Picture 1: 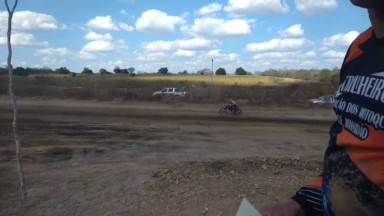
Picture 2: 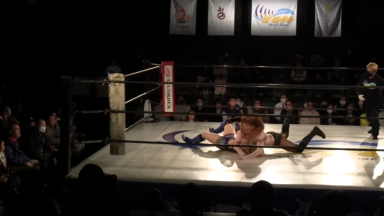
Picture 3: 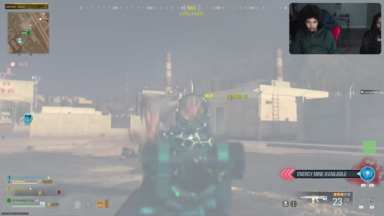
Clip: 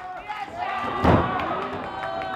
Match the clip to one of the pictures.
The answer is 2